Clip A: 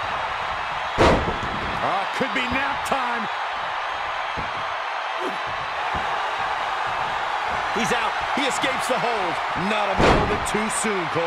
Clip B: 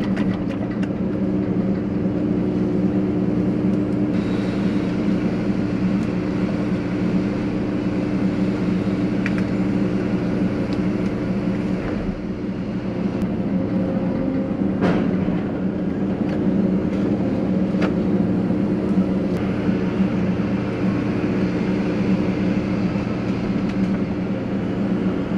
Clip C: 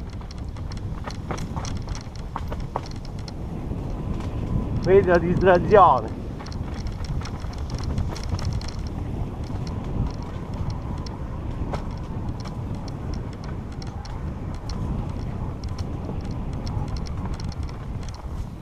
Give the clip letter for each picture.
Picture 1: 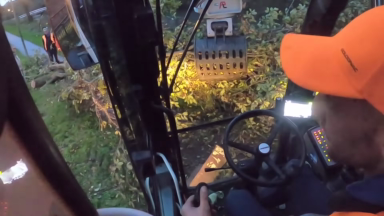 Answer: B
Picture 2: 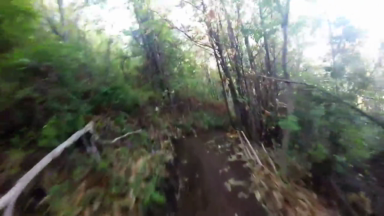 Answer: C